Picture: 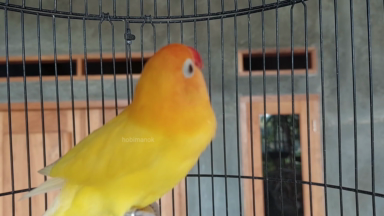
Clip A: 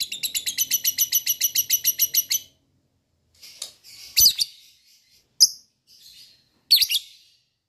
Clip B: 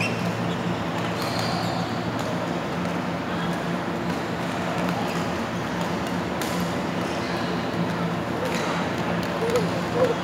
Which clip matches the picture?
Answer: A